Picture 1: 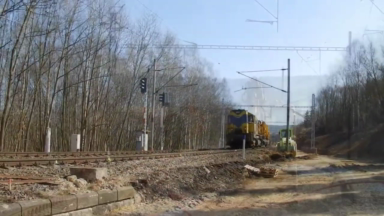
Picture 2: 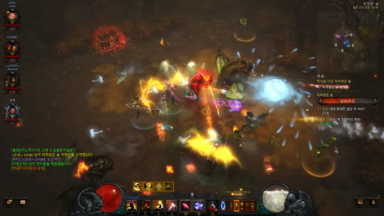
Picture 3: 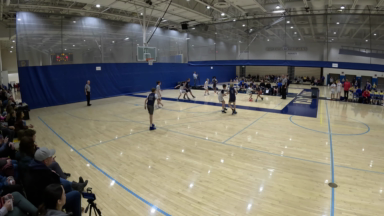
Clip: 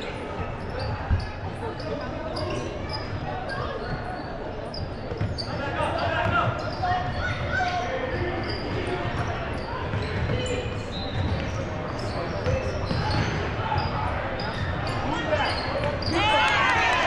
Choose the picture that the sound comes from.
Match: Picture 3